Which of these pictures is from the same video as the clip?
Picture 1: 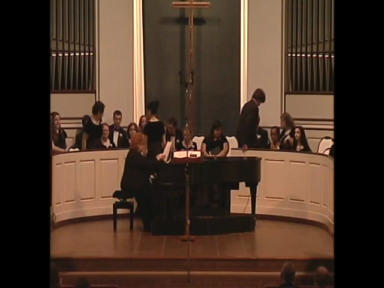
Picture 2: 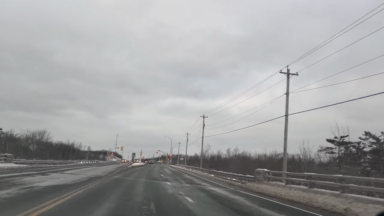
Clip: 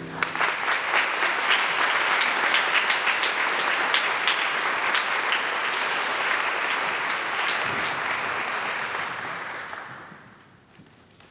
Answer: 1